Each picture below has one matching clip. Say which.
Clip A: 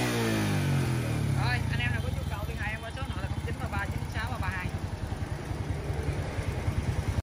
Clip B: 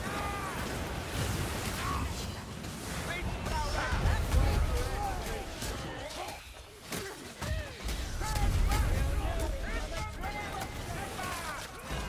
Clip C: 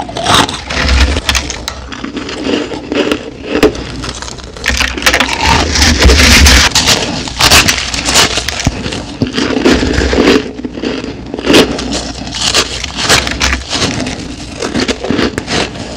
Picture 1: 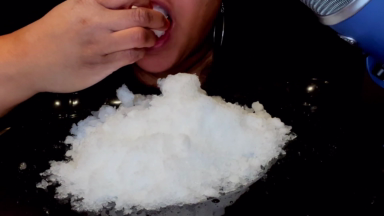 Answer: C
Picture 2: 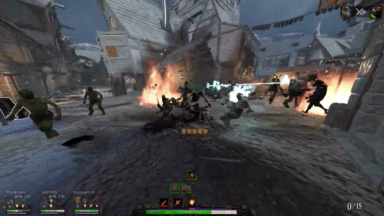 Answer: B